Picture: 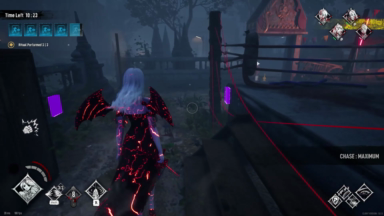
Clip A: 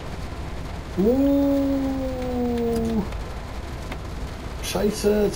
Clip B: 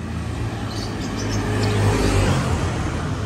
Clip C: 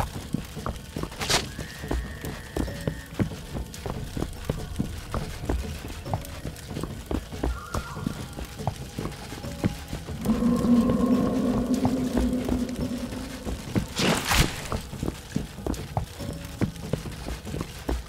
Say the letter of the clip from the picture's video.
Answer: C